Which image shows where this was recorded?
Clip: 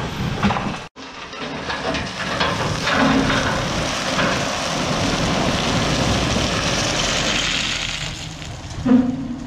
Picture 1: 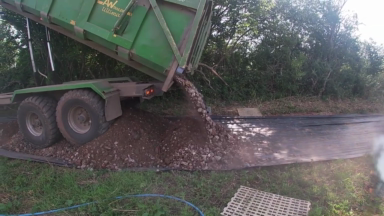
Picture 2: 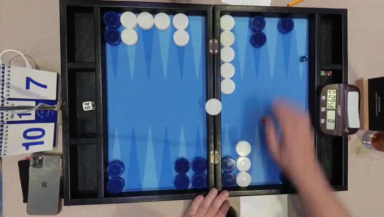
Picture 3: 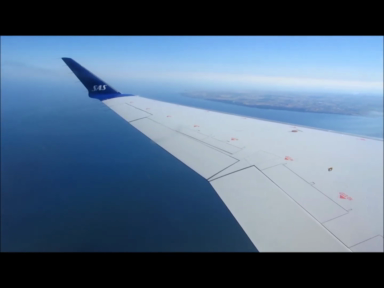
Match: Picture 1